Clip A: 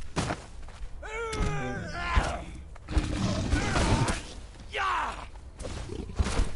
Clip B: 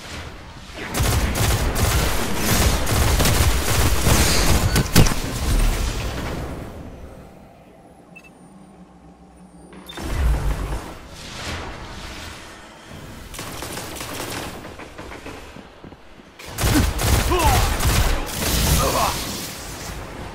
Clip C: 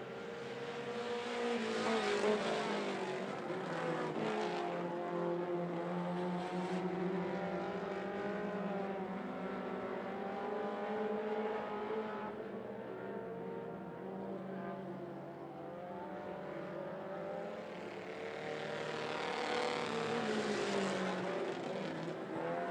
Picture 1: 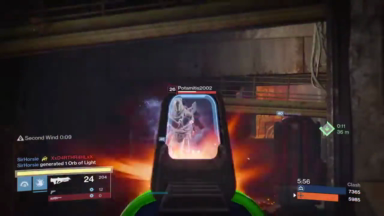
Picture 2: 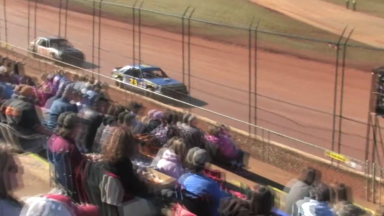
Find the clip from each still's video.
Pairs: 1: B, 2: C